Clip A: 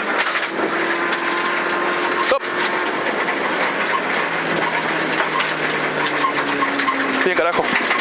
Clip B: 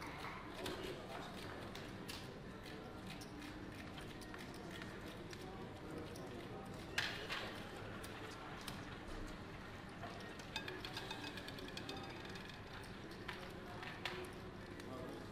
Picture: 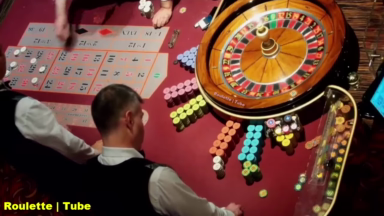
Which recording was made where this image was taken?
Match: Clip B